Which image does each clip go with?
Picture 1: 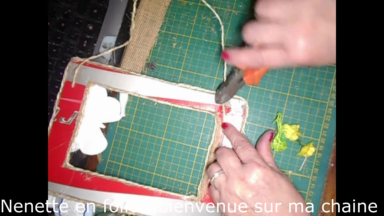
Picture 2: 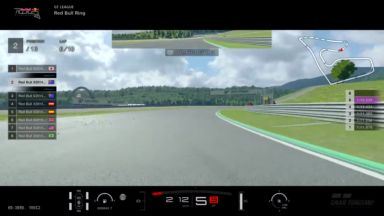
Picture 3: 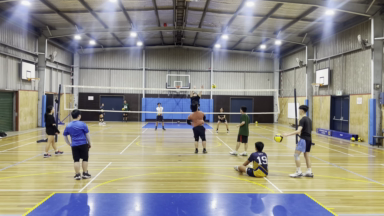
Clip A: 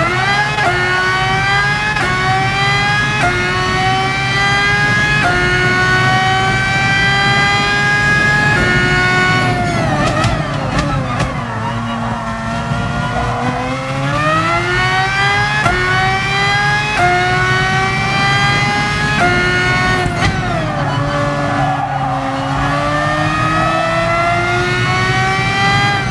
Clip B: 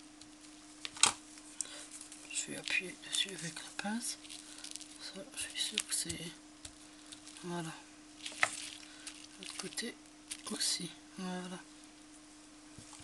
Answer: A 2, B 1